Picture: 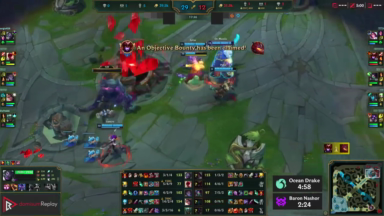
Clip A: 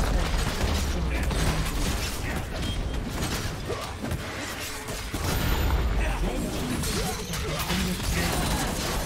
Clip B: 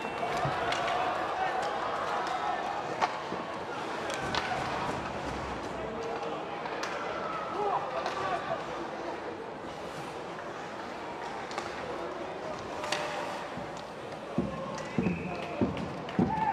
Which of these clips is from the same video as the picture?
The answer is A